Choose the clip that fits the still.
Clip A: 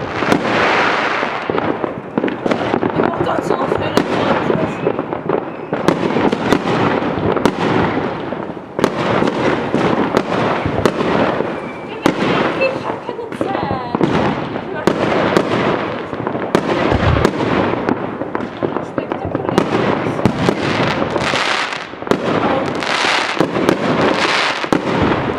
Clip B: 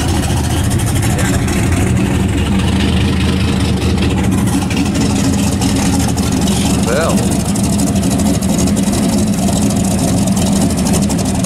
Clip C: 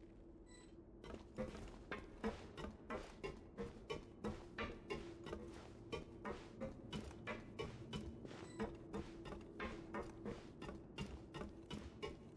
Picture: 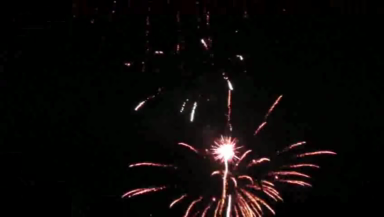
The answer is A